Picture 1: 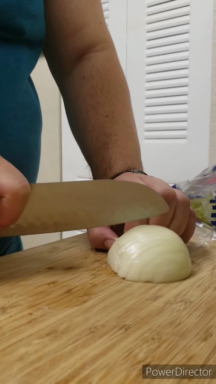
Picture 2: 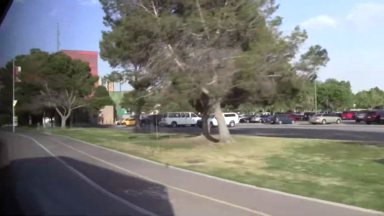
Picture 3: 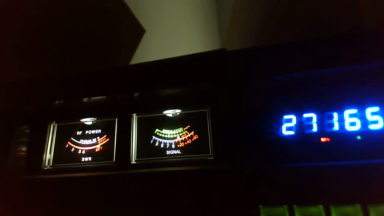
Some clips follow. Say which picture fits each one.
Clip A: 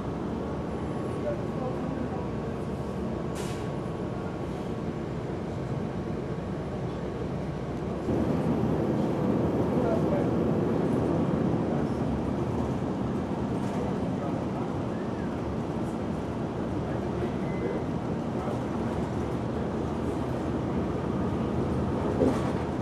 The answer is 2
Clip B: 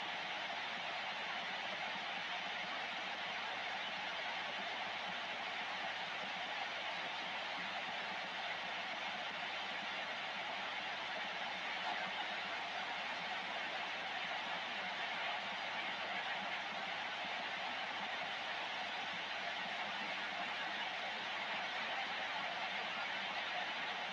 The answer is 3